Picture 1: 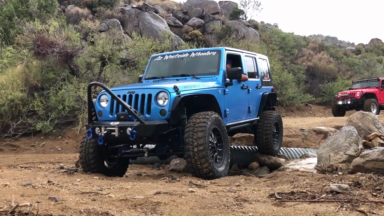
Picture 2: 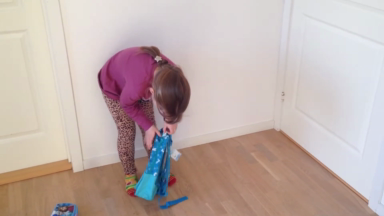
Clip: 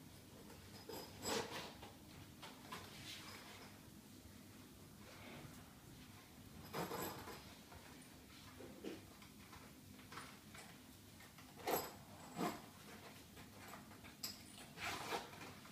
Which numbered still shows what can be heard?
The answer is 2